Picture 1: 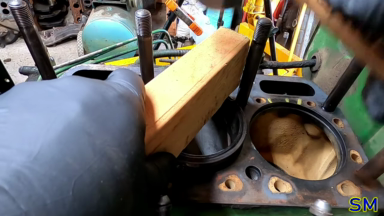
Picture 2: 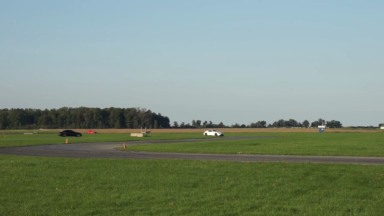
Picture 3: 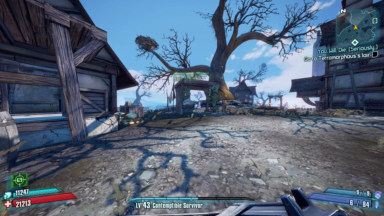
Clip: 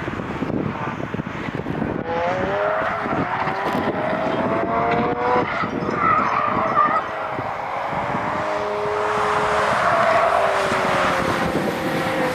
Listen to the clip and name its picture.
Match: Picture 2